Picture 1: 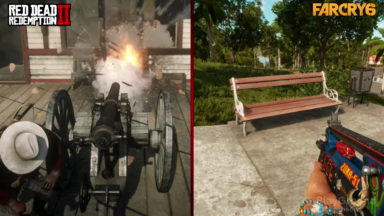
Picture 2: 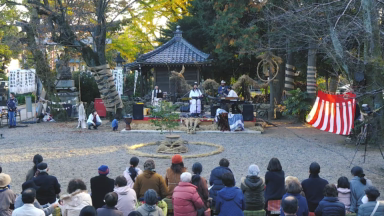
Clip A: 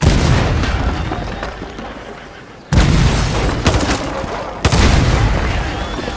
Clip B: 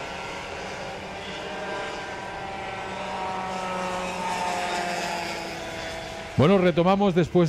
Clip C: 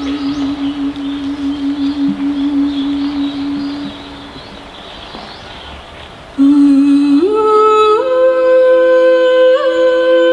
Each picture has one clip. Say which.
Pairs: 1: A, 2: C